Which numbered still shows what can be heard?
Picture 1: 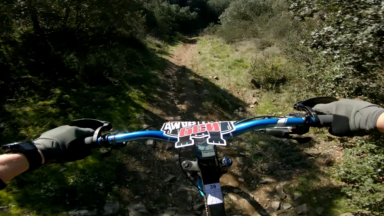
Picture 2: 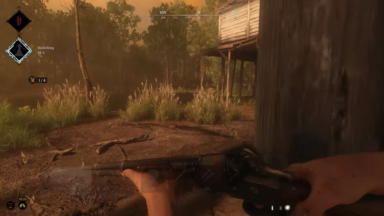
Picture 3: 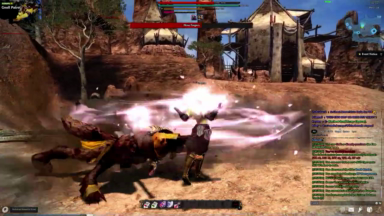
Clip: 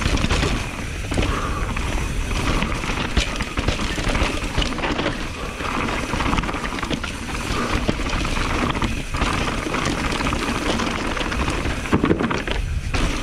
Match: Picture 1